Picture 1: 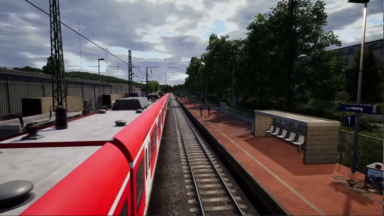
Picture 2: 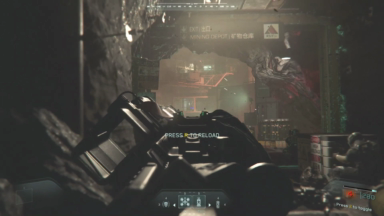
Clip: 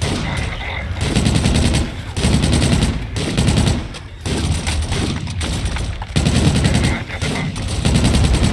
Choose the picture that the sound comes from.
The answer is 2